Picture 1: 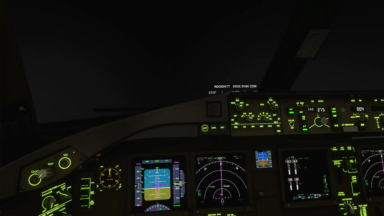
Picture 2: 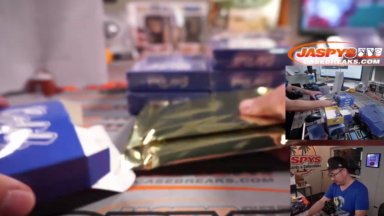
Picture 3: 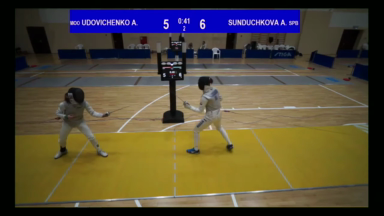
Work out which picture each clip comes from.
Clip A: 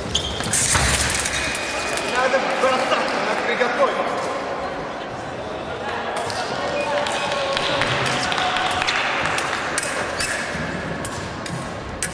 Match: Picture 3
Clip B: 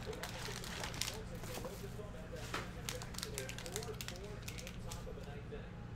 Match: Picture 2